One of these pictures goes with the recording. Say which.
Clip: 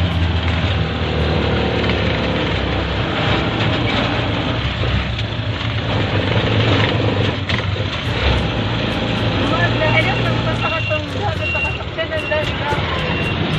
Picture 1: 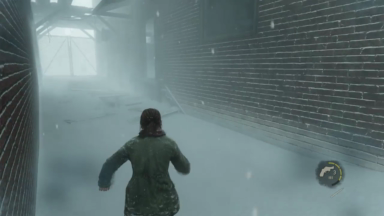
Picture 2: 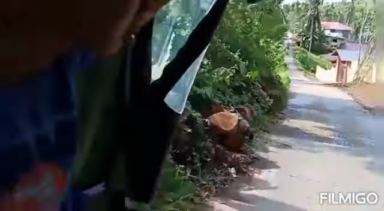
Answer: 2